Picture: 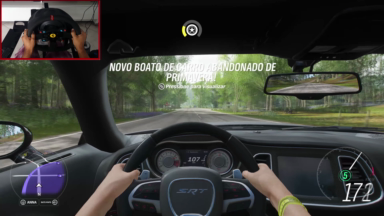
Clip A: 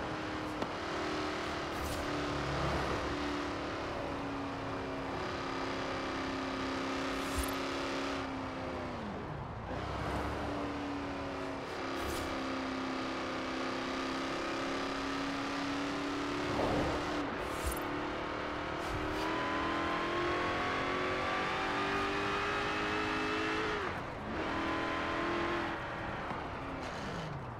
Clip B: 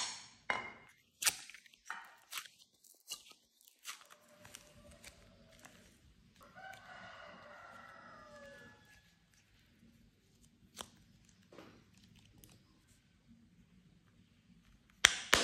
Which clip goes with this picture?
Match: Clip A